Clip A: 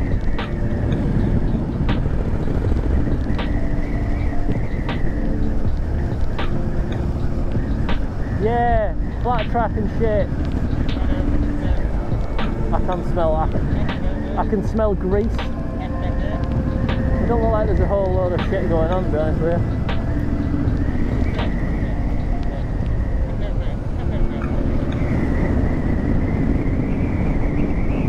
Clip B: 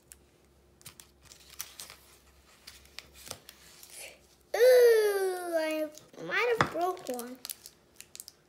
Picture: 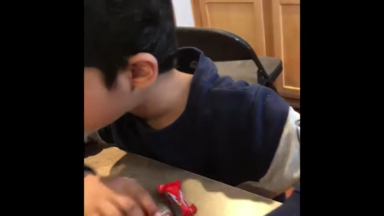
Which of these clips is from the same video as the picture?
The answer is B